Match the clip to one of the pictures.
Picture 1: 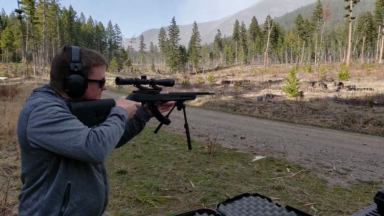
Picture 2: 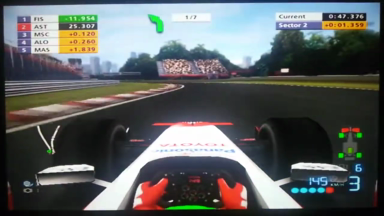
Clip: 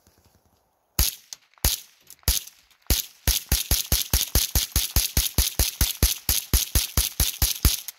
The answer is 1